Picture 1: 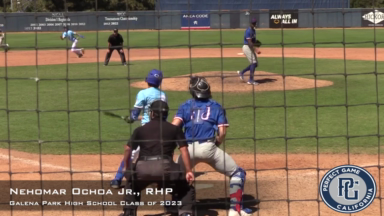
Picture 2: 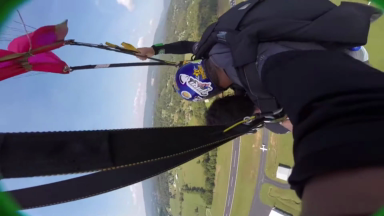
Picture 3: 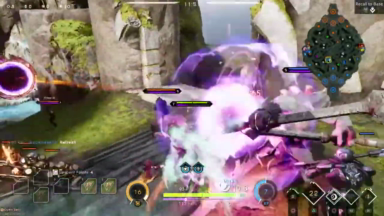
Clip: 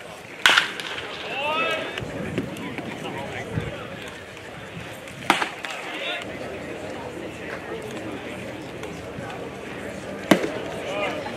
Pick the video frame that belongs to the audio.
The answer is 1